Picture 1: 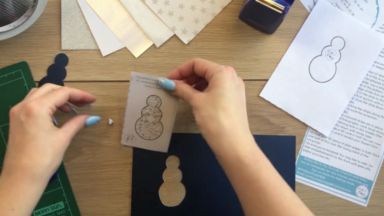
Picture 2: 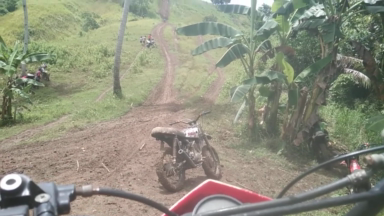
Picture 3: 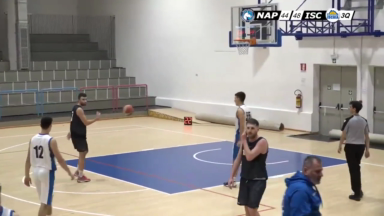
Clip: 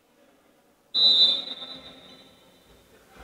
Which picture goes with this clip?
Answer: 3